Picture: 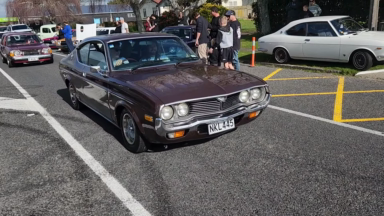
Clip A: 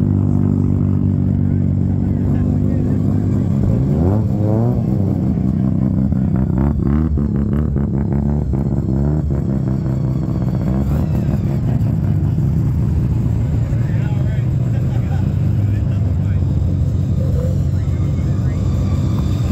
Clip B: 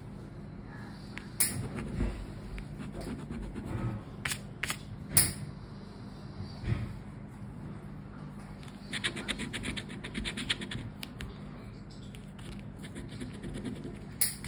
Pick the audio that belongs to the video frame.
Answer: A